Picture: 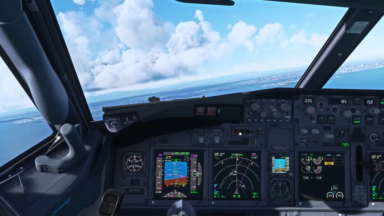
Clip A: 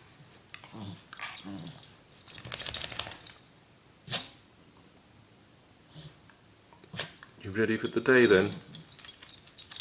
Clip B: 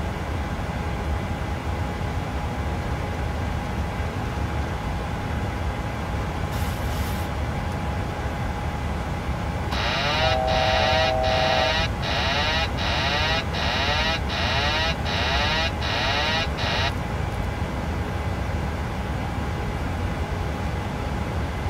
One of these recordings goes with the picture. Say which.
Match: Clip B